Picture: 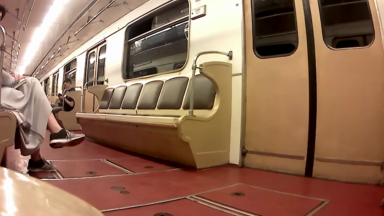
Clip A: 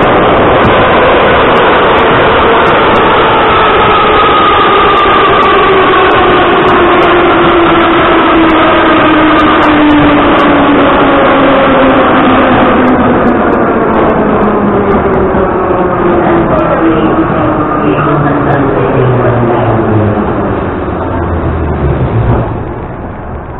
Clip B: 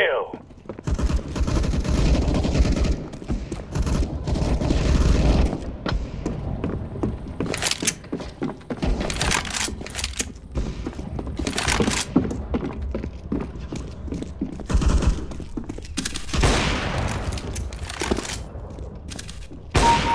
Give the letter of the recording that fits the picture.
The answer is A